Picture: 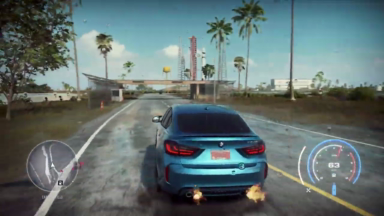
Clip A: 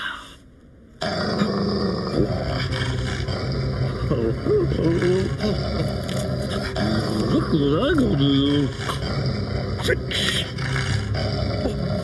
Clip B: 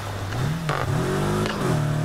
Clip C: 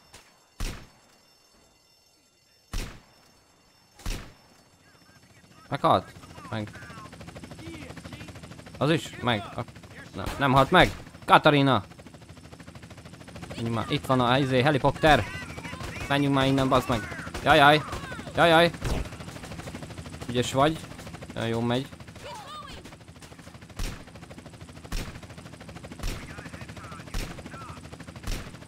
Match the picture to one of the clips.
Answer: B